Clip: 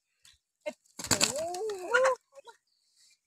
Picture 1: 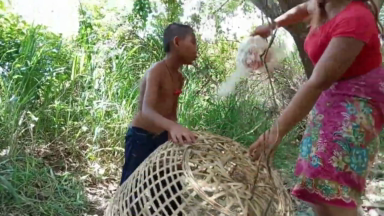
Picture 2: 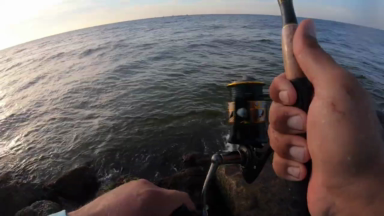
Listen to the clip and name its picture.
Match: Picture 1